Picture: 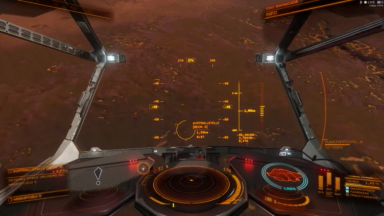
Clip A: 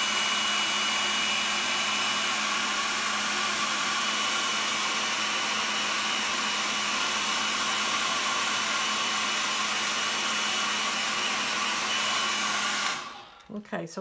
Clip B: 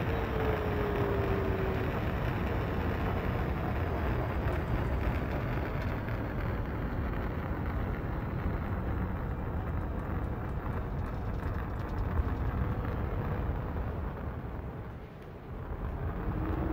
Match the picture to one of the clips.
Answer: B